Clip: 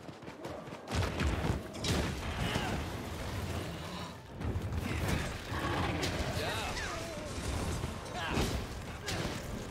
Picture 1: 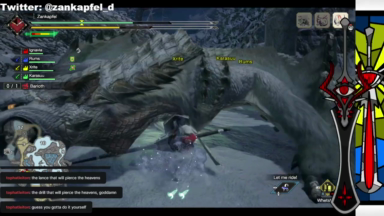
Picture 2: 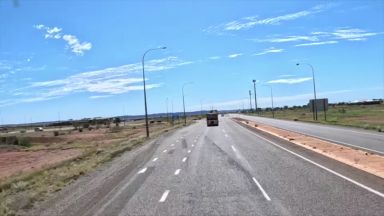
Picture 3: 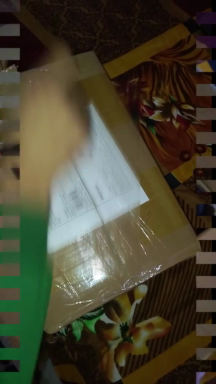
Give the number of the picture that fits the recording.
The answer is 1